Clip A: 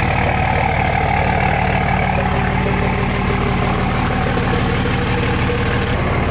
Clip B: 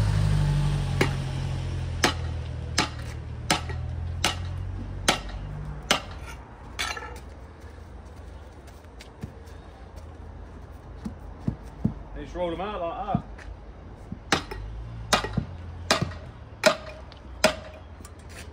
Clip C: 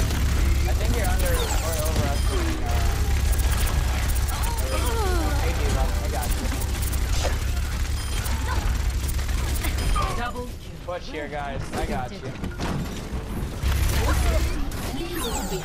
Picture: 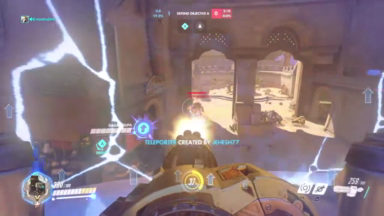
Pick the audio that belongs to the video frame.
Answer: C